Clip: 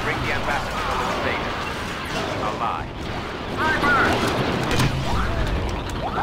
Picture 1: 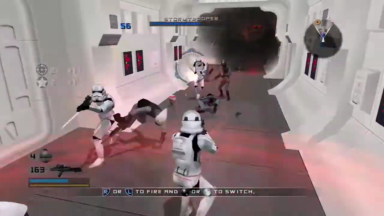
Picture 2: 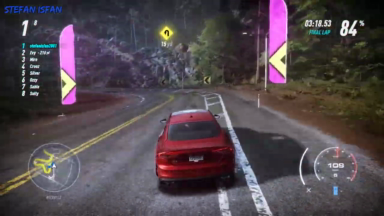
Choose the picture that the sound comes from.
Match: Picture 1